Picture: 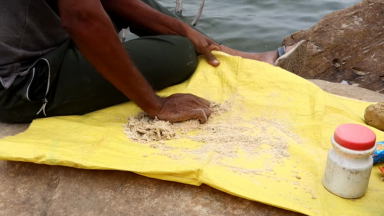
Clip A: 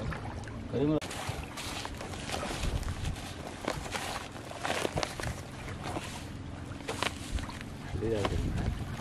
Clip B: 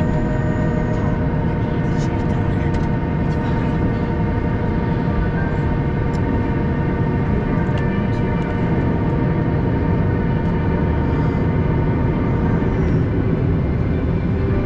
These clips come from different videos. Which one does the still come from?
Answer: A